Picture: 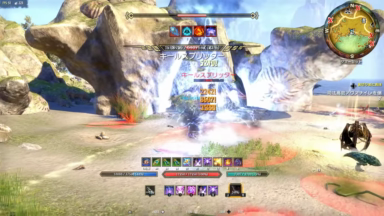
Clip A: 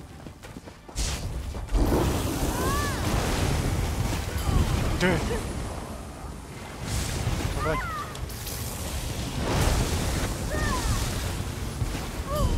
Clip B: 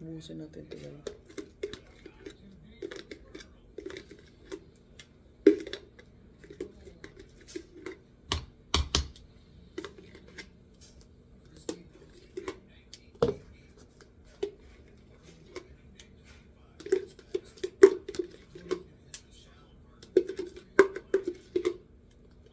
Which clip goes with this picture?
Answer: A